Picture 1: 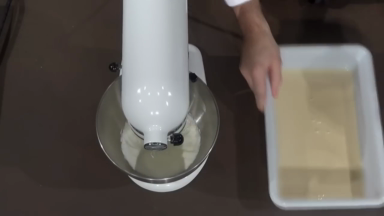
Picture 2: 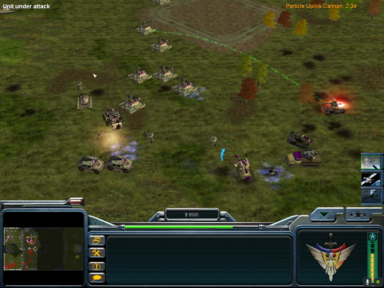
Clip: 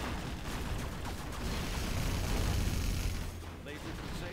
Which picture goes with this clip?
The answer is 2